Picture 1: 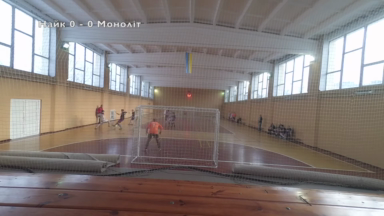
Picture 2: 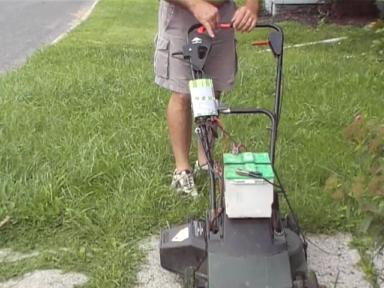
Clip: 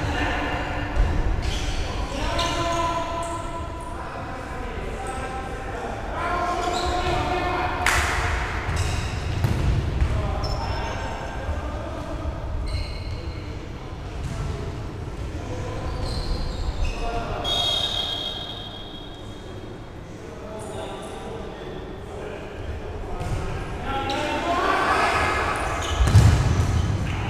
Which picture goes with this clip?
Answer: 1